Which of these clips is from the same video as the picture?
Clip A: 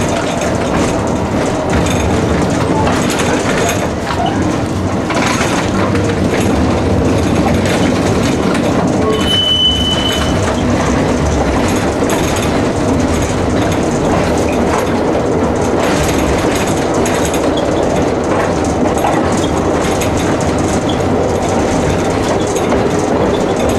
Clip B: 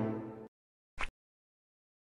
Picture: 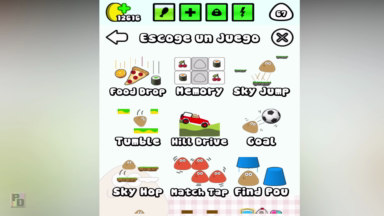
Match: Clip B